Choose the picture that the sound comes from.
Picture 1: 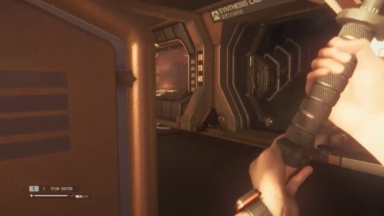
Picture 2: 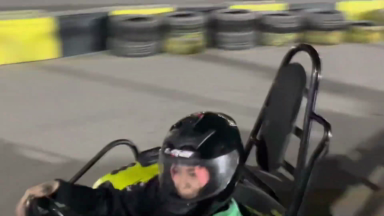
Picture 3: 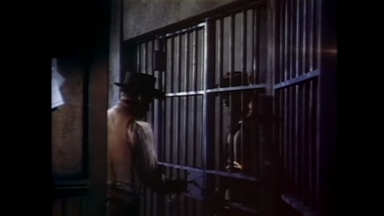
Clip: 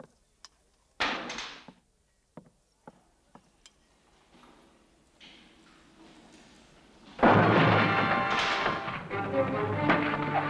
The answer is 3